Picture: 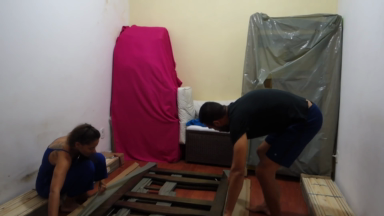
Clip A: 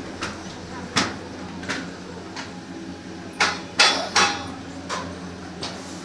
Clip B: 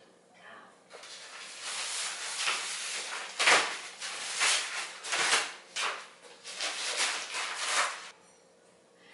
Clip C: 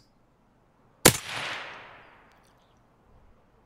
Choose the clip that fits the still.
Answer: B